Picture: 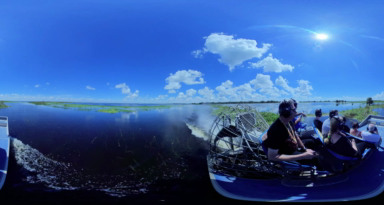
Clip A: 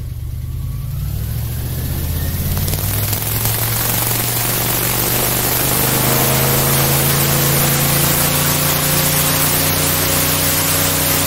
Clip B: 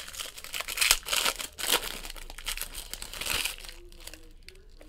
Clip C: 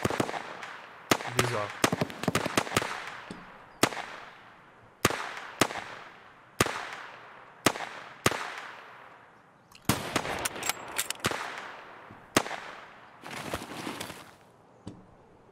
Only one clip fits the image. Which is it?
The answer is A